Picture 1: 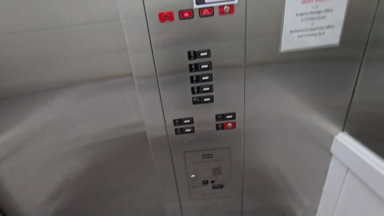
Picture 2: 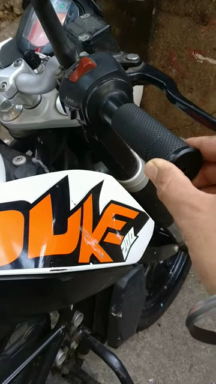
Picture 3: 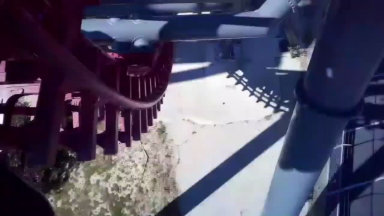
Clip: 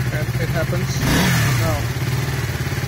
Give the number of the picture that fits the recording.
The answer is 2